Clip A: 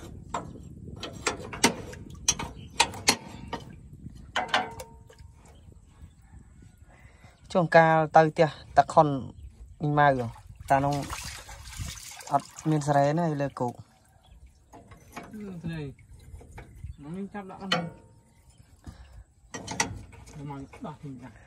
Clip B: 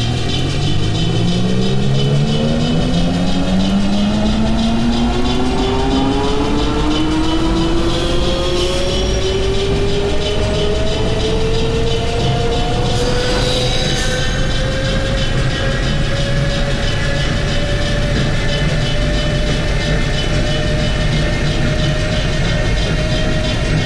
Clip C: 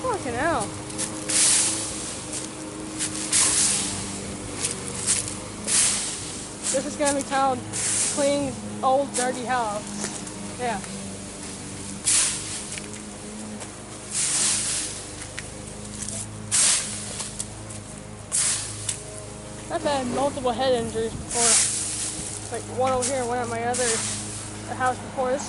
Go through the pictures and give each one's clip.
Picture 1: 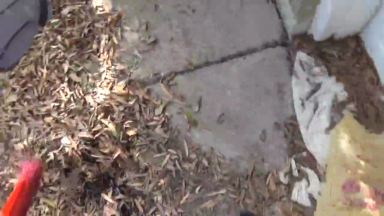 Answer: C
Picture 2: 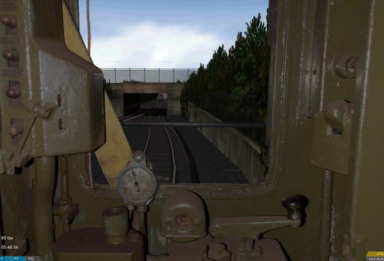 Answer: B